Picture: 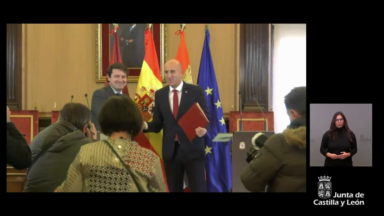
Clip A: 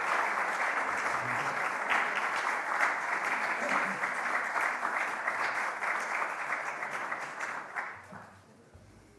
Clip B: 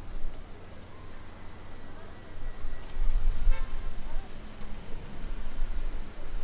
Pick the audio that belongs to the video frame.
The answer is A